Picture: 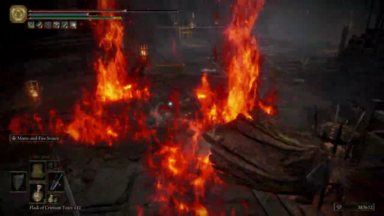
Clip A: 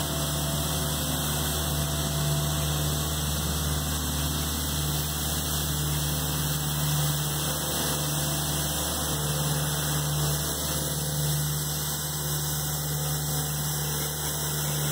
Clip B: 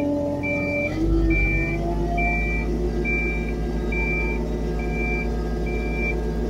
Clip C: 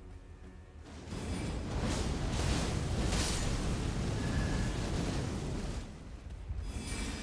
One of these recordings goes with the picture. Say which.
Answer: C